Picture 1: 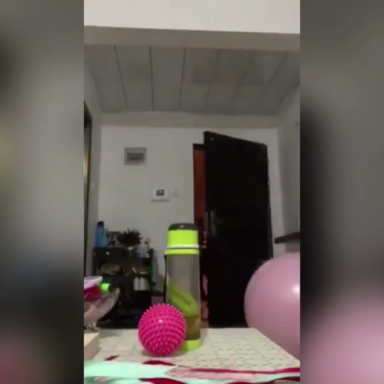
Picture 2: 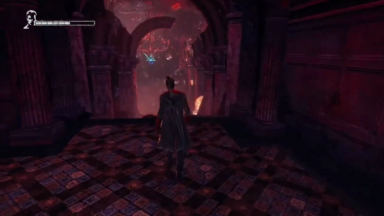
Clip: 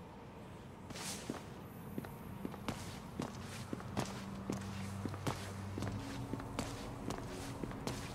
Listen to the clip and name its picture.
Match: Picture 2